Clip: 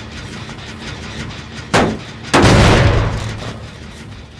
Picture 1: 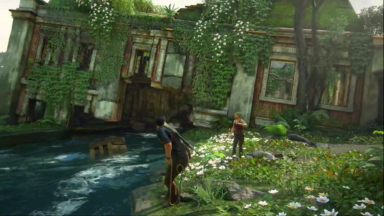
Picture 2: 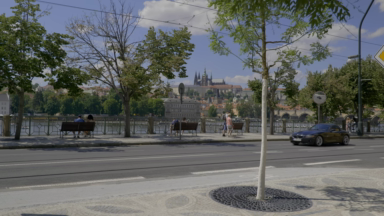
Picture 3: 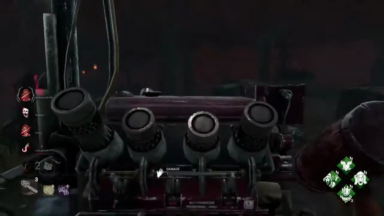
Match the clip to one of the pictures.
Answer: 3